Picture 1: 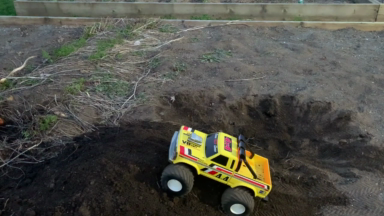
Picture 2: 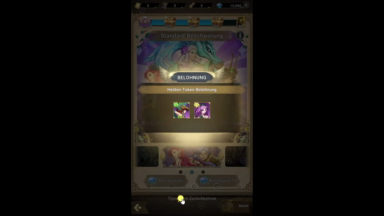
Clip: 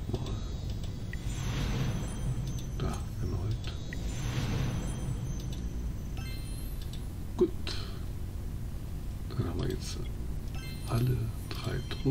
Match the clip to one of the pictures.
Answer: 2